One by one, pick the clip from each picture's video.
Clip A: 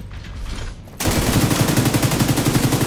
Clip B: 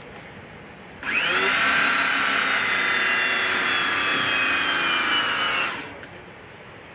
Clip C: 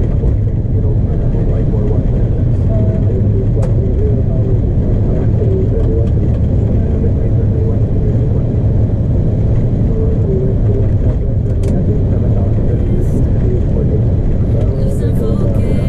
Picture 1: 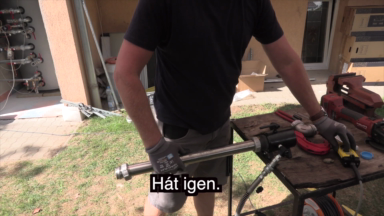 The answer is B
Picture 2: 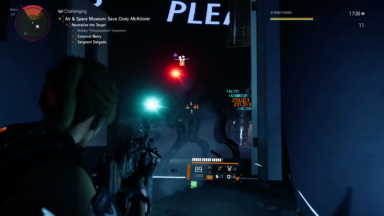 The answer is A